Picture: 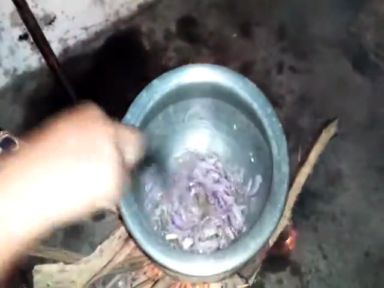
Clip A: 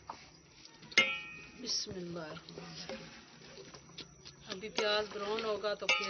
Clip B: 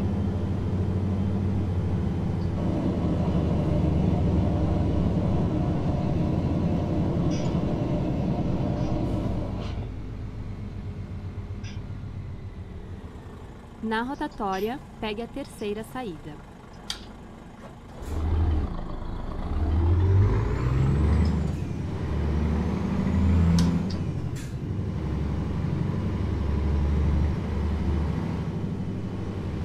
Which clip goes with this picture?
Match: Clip A